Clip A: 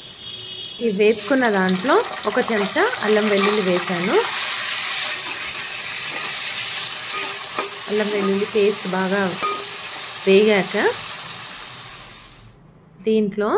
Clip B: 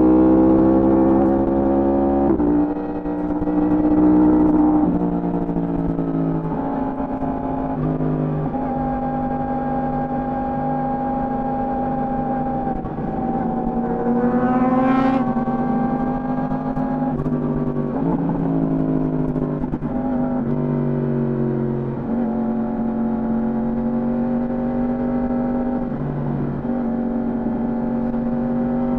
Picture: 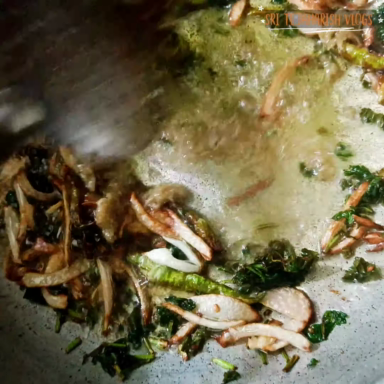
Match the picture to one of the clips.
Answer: A